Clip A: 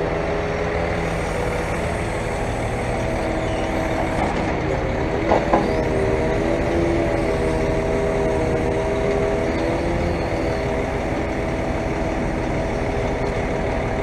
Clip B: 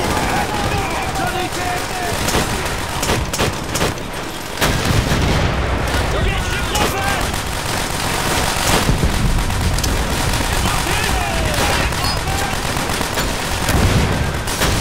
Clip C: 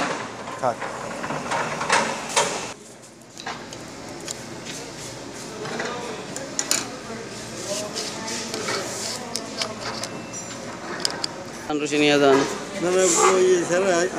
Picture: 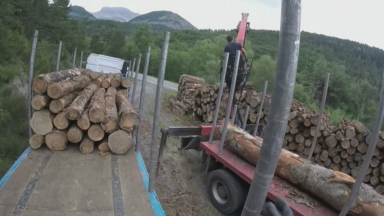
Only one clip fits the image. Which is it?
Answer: A